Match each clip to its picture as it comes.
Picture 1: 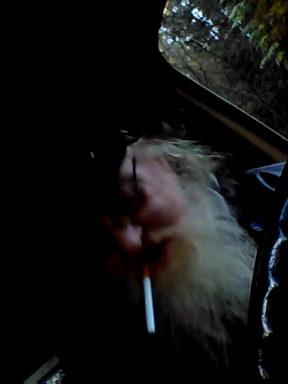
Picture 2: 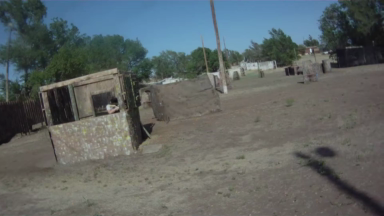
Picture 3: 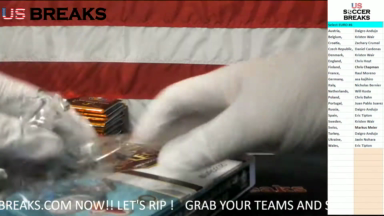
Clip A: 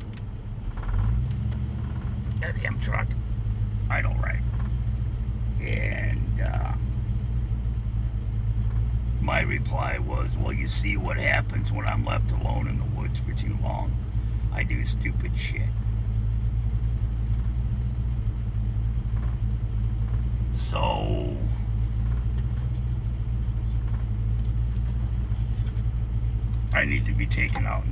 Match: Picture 1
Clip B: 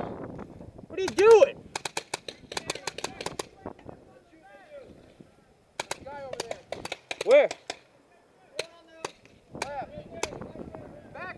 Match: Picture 2